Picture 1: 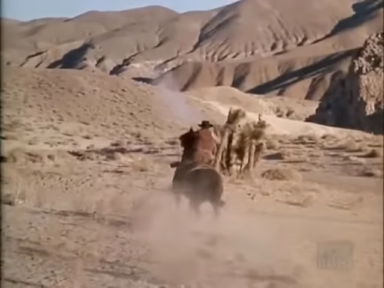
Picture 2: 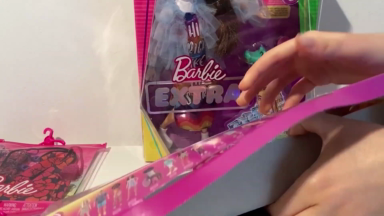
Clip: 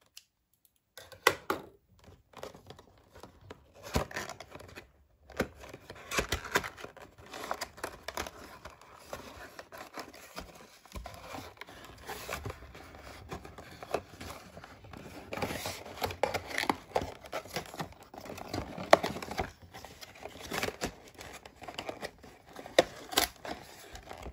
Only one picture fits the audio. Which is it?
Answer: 2